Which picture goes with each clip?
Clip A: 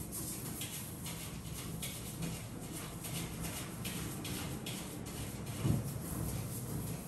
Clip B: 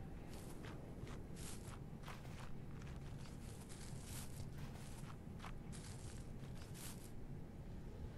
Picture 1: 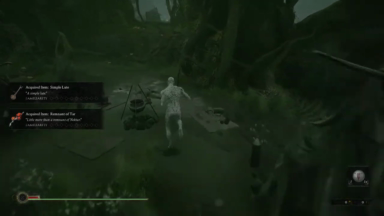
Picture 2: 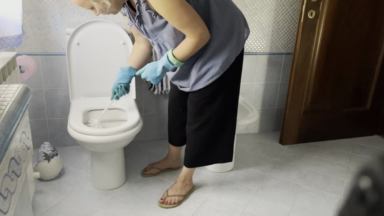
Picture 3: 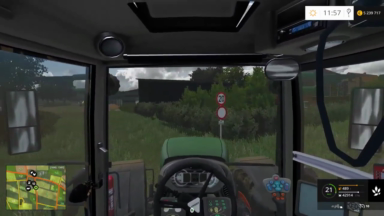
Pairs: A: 2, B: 1